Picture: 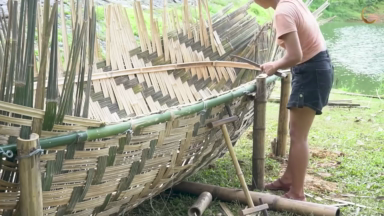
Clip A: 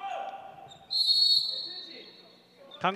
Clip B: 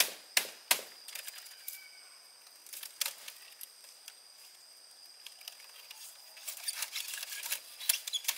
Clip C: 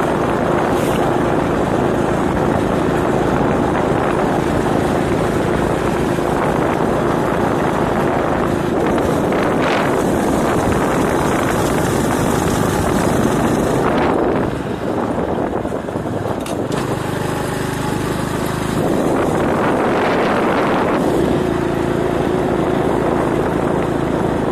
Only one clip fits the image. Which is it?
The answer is B